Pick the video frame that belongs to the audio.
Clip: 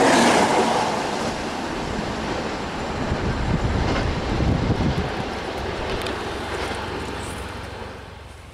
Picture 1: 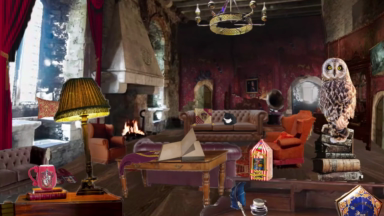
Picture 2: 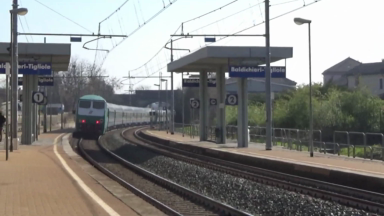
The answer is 2